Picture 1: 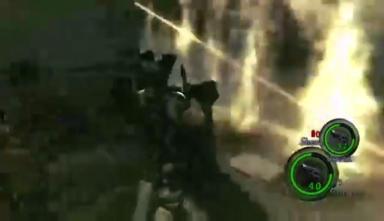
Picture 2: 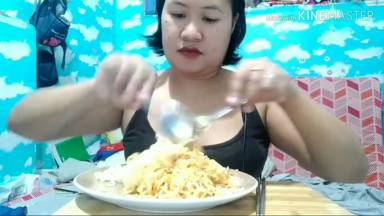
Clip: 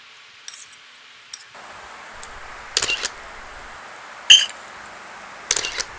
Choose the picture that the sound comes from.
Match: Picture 2